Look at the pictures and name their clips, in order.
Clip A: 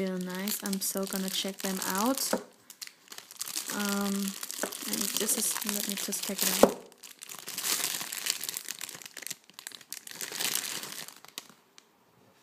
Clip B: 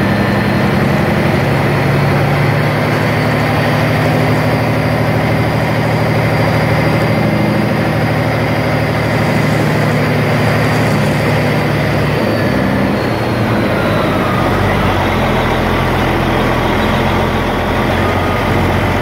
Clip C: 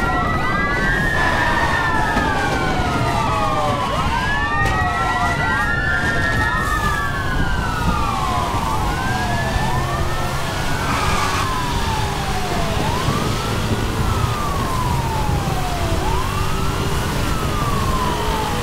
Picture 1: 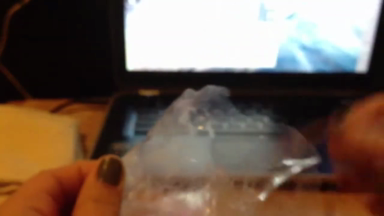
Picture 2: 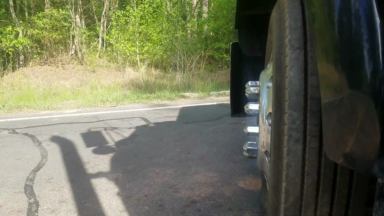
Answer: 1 A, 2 B